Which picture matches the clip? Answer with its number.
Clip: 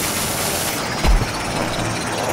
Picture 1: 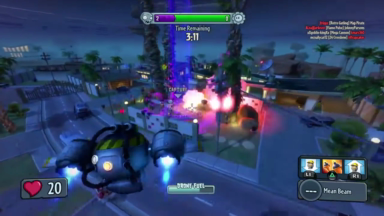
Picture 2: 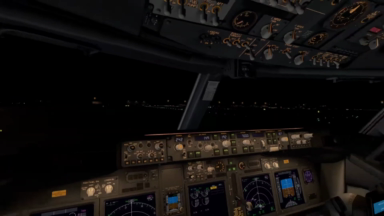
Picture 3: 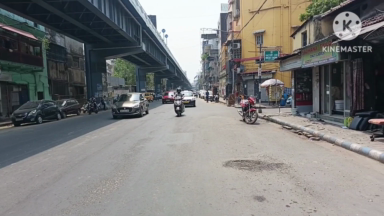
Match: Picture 1